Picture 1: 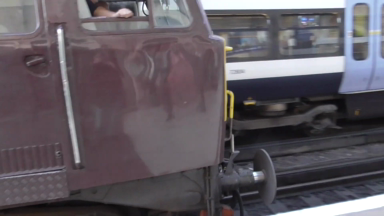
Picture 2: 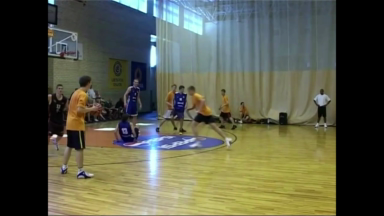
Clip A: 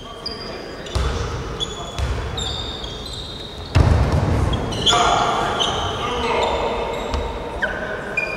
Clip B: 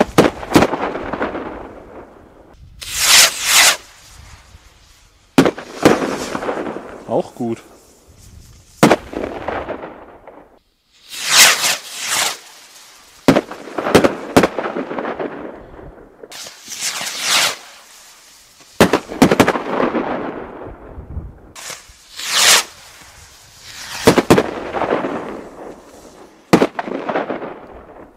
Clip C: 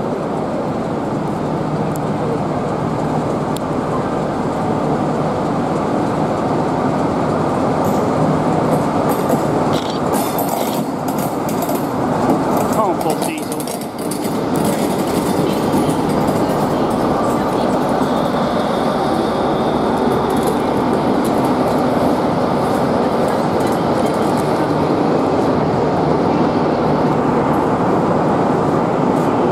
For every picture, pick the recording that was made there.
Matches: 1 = C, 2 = A